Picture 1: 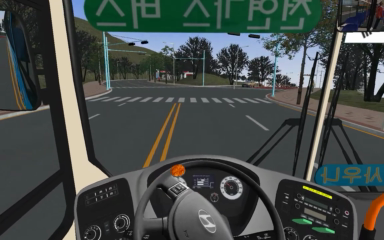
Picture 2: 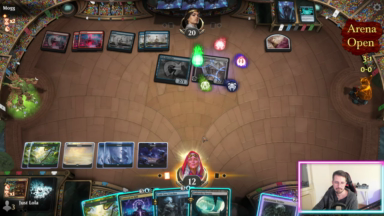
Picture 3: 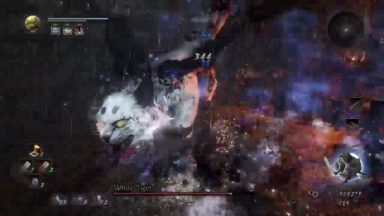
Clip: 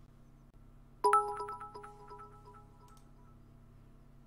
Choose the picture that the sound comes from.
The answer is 2